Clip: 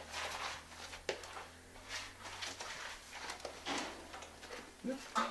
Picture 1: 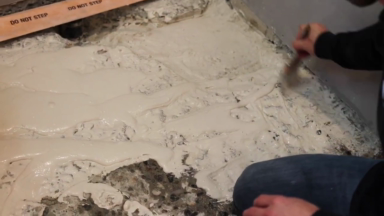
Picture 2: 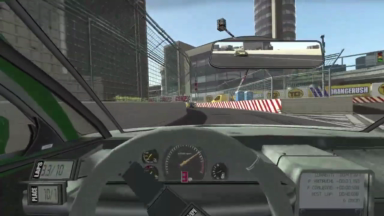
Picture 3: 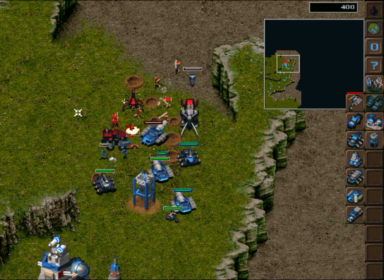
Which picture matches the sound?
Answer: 1